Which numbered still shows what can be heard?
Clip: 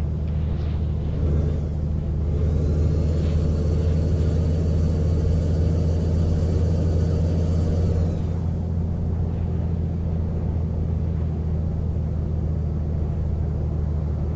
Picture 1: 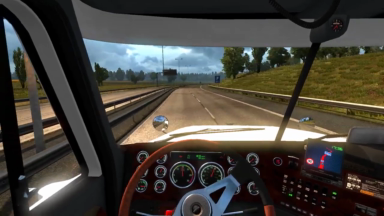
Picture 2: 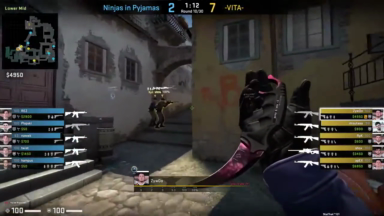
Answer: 1